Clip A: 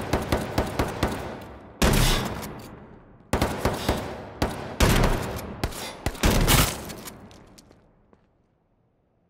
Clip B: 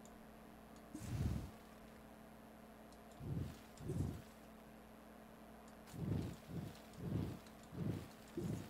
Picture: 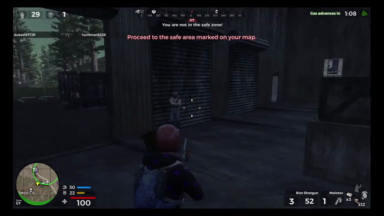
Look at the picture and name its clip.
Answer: A